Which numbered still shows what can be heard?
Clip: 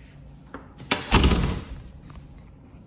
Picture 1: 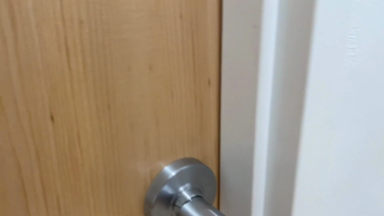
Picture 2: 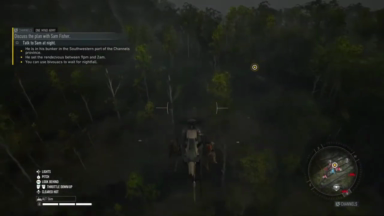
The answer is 1